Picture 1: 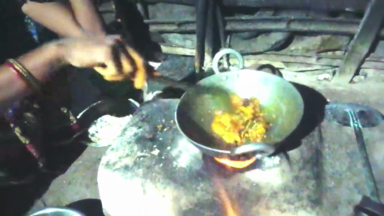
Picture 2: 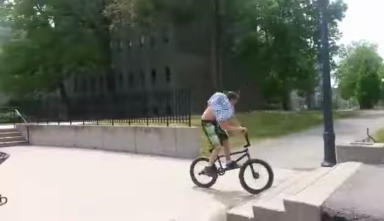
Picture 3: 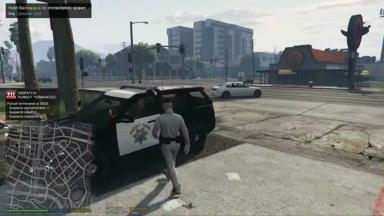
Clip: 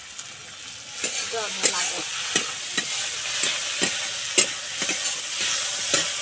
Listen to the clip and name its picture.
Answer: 1